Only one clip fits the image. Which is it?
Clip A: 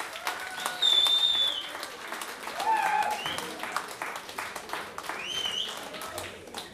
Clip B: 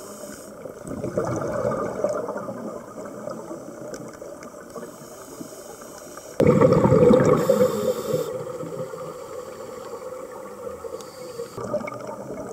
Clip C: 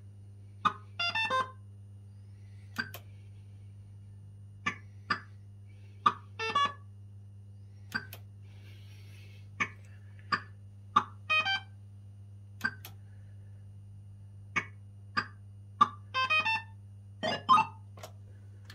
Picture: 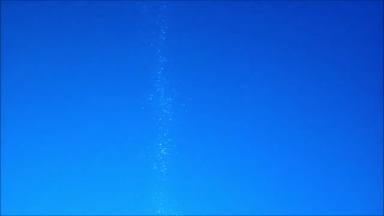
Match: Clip B